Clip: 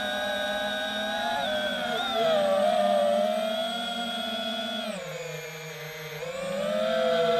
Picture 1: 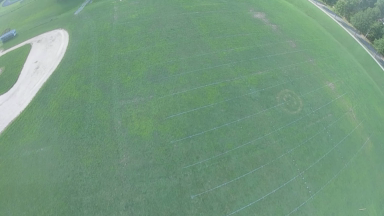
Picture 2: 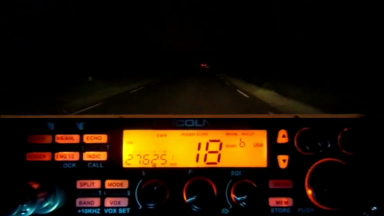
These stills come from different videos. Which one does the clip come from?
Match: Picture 1